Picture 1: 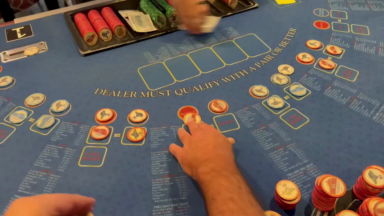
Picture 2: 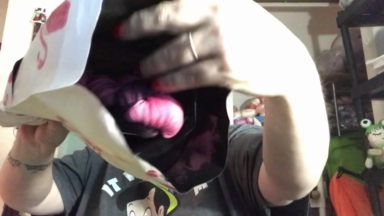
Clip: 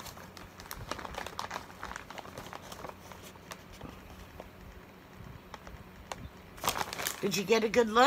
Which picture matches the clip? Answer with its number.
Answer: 2